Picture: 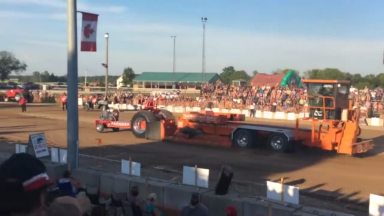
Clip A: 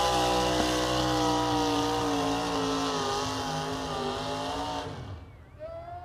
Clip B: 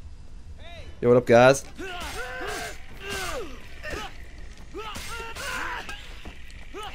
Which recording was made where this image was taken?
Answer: A